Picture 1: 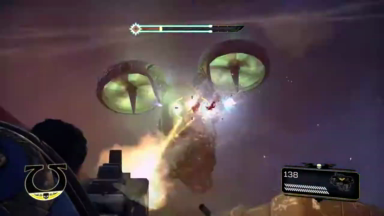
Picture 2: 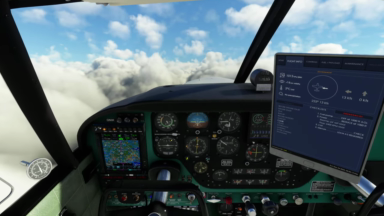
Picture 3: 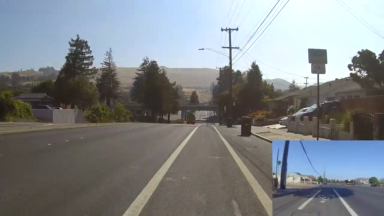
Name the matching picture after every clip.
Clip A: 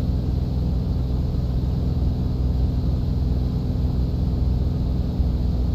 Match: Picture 2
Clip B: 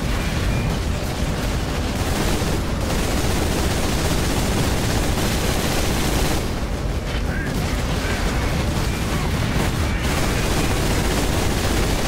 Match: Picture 1